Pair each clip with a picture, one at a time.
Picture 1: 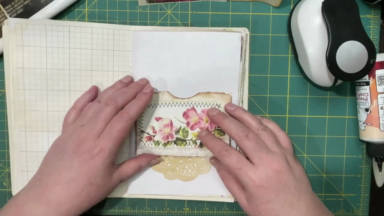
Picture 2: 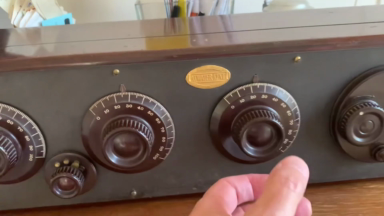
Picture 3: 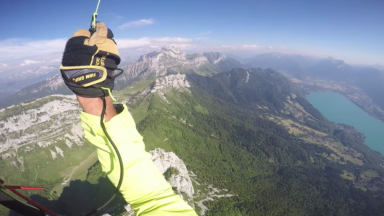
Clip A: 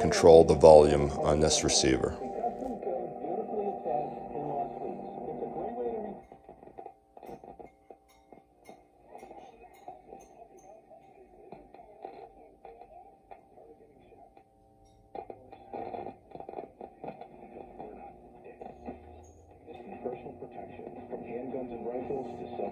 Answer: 2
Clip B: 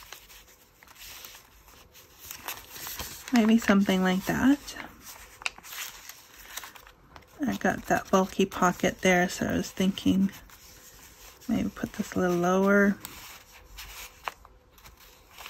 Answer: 1